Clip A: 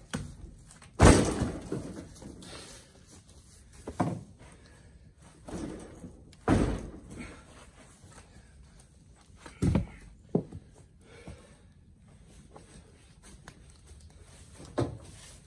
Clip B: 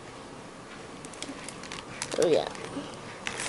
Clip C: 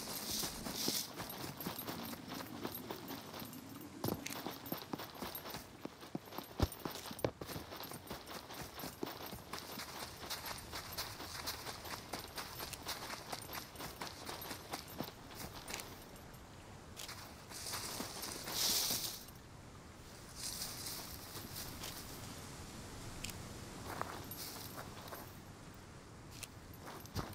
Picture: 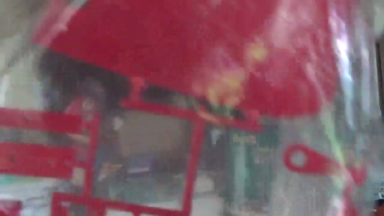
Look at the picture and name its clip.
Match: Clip B